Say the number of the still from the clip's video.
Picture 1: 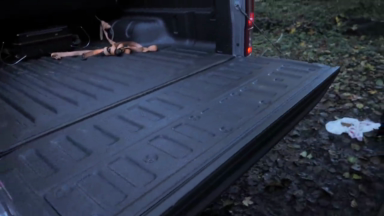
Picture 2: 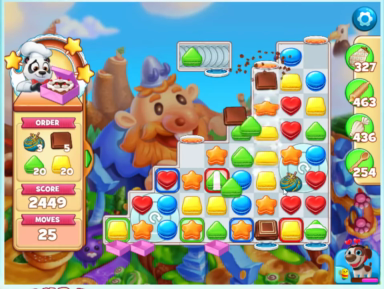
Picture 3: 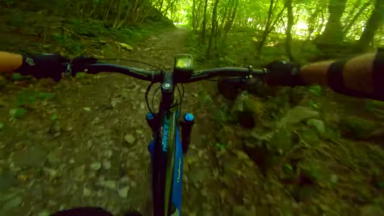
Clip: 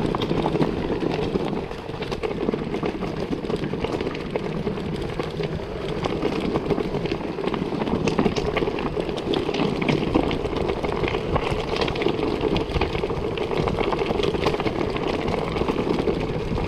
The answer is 3